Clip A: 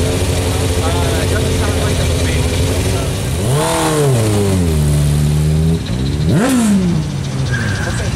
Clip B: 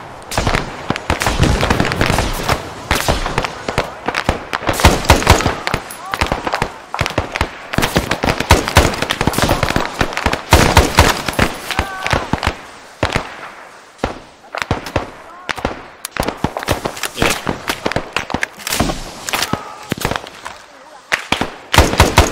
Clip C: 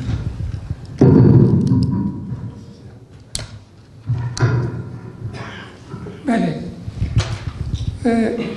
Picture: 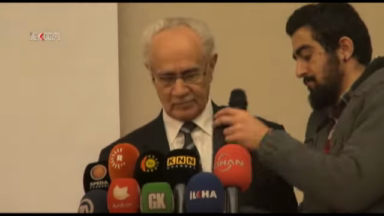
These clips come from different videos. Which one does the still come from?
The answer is C